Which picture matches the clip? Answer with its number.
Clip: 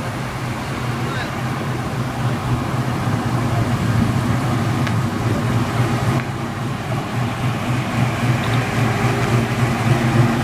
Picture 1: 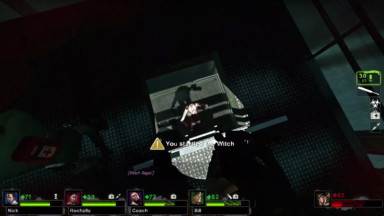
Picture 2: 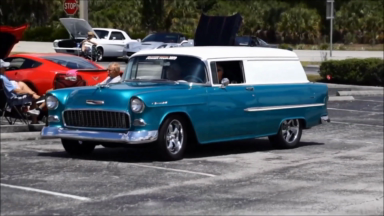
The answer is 2